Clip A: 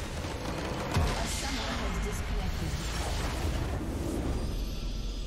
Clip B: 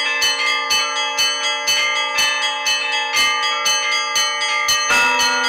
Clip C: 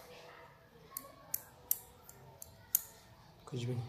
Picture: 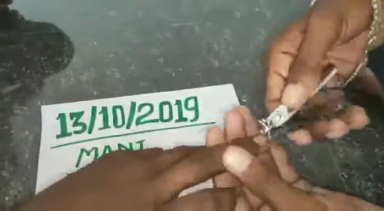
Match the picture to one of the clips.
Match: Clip C